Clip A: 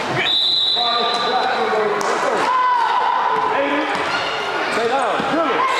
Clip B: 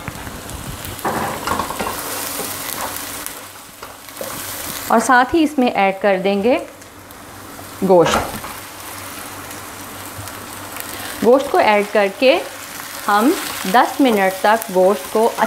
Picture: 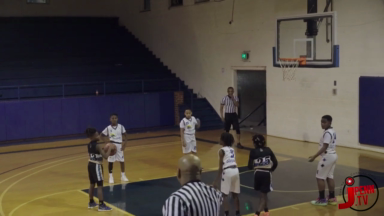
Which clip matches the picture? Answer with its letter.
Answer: A